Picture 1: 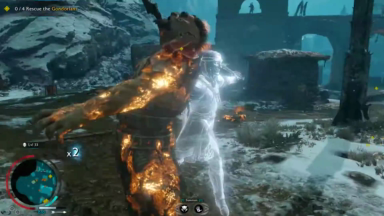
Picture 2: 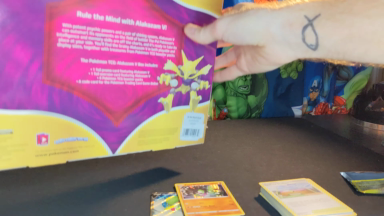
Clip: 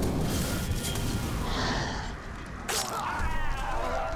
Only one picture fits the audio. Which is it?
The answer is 1